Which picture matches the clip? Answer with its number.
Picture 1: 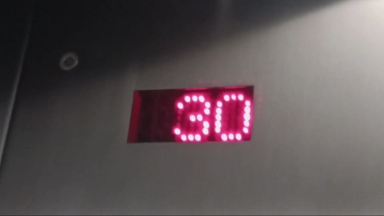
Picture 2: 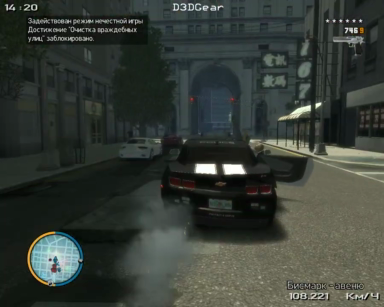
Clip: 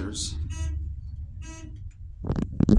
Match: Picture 1